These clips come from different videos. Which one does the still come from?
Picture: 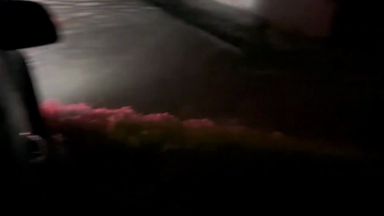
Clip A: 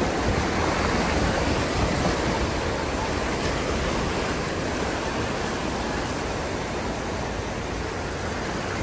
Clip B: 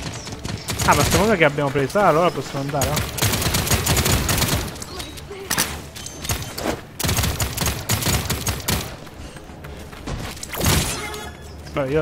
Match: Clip A